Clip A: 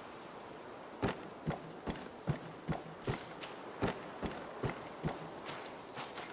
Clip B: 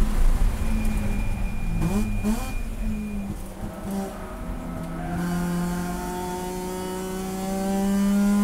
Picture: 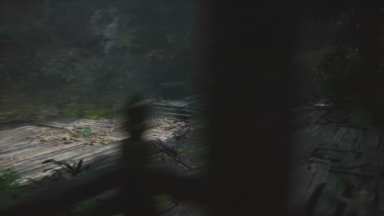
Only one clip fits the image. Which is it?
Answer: A